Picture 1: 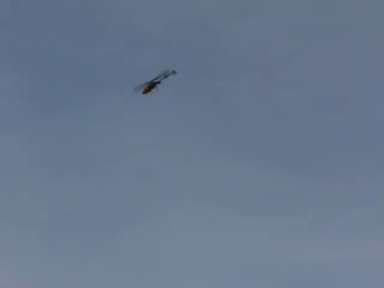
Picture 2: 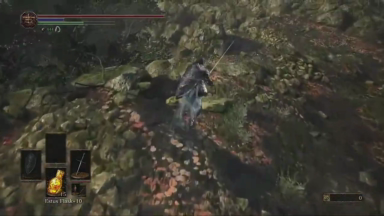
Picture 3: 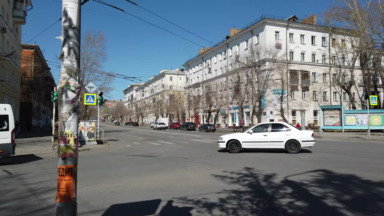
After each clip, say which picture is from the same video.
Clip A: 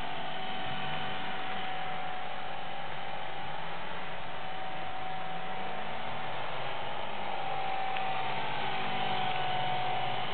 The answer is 1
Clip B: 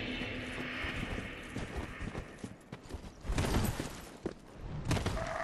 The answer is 2